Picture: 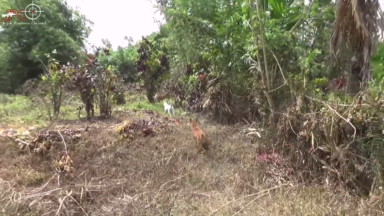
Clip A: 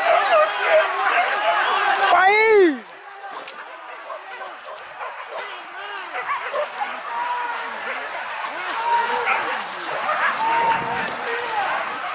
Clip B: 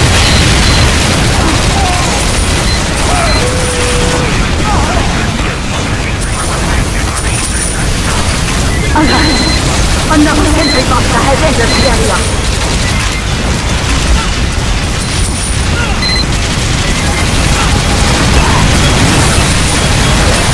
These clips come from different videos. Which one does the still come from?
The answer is A